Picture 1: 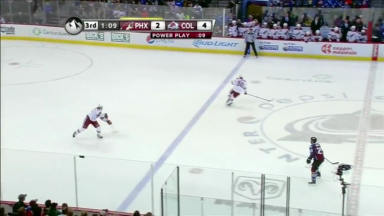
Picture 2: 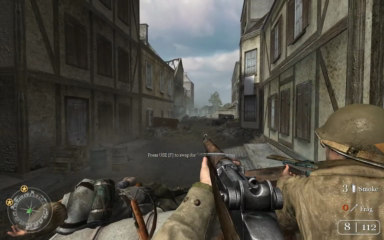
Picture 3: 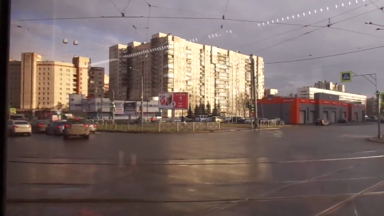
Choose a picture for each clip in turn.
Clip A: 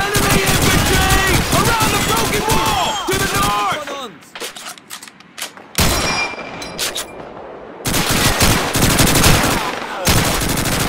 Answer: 2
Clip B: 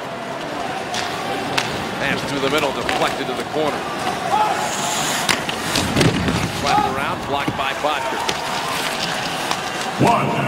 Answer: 1